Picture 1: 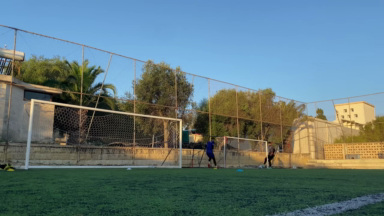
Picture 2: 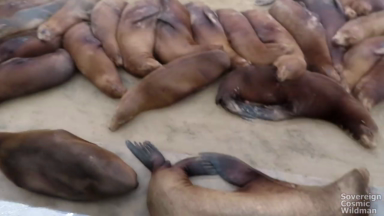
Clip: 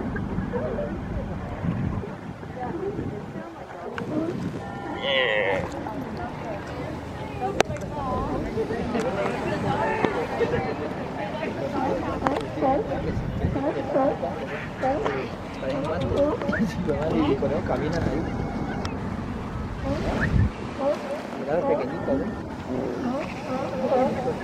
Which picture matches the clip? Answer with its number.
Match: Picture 2